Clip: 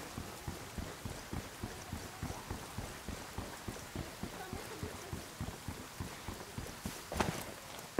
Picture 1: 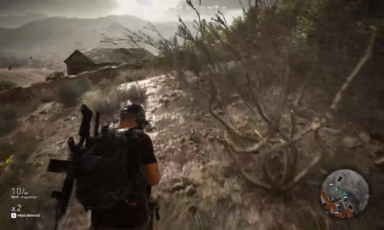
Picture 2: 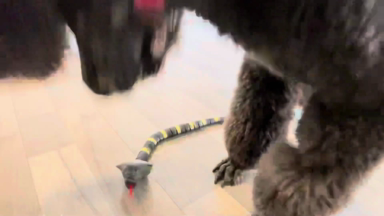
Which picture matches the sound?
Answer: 1